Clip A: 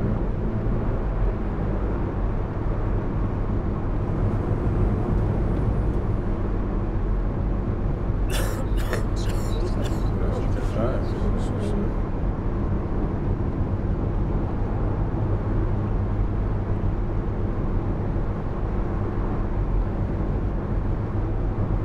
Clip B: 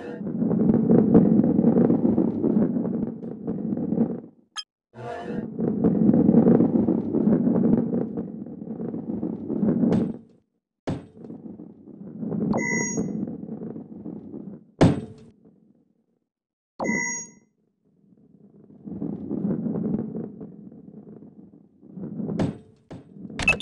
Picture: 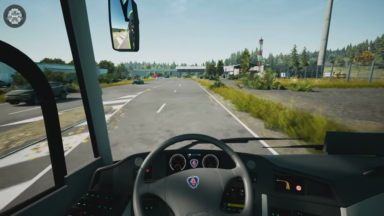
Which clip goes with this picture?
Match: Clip A